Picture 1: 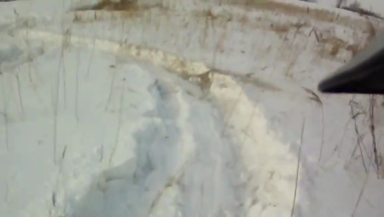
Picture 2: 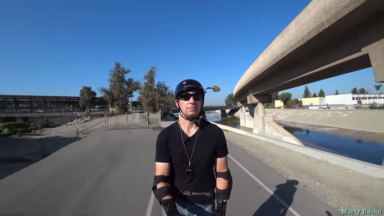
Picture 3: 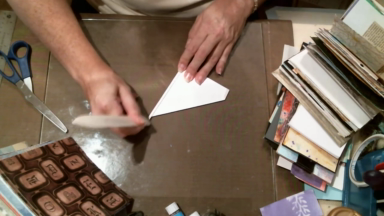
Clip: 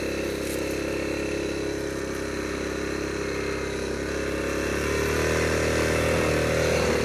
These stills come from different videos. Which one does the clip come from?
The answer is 1